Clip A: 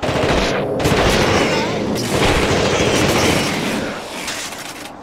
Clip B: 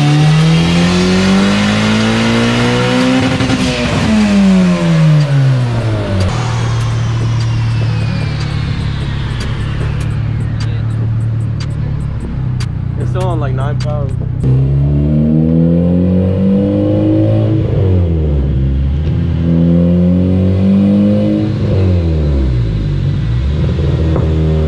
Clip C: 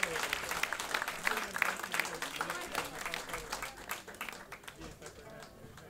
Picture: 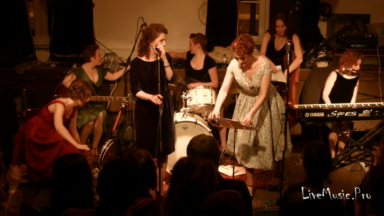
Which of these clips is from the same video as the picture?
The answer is C